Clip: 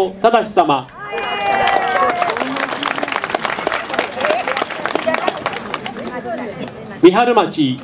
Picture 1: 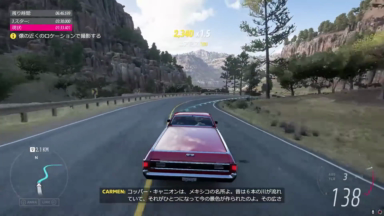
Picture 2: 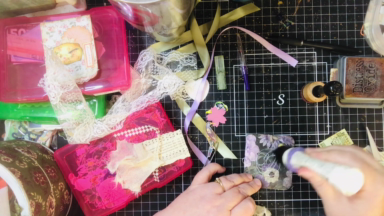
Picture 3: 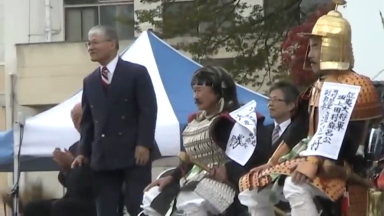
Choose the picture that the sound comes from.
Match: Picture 3